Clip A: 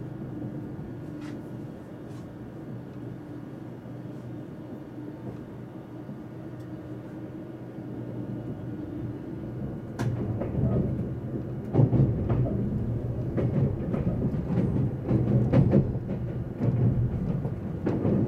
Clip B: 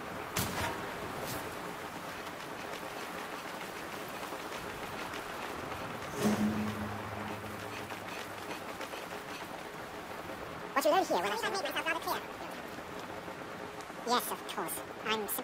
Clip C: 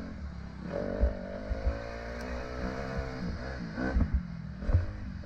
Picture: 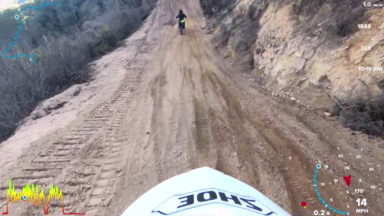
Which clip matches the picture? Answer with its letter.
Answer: C